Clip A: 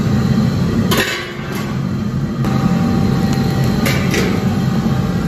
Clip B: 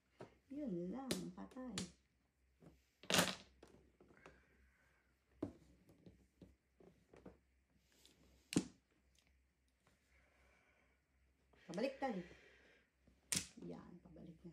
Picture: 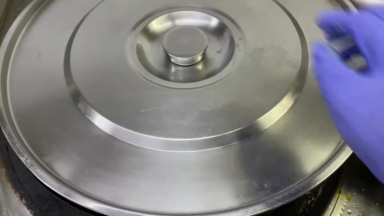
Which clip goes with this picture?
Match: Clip A